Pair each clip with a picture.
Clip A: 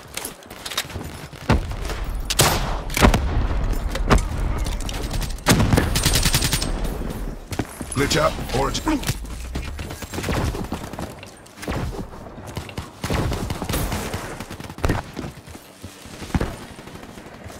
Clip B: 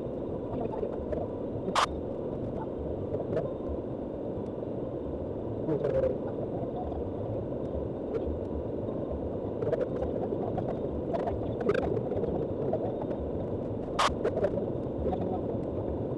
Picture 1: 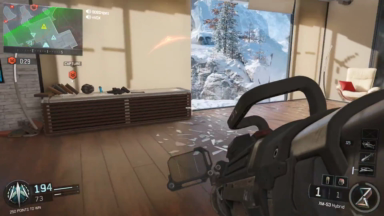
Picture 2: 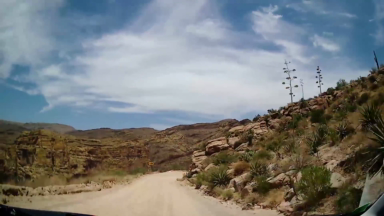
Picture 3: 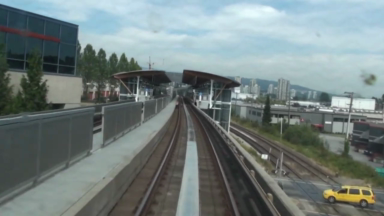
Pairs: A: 1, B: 2